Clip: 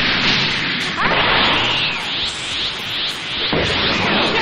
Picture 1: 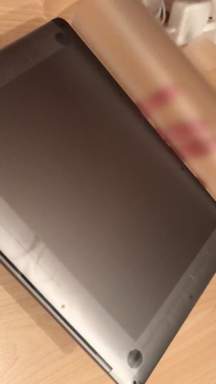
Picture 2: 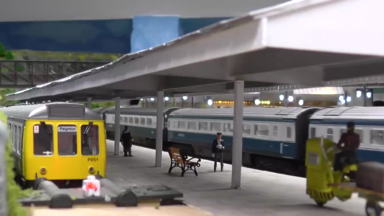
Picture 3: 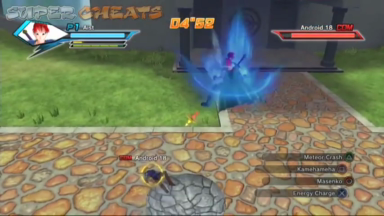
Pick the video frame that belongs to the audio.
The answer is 3